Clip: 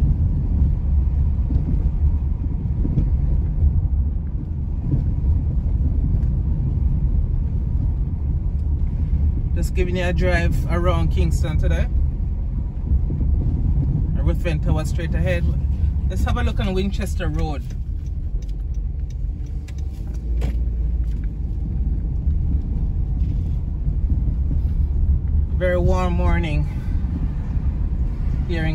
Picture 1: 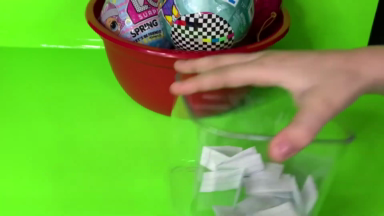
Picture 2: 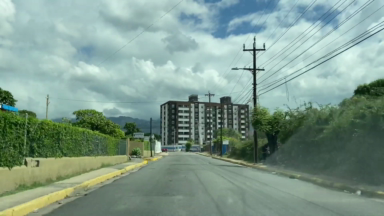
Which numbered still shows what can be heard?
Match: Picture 2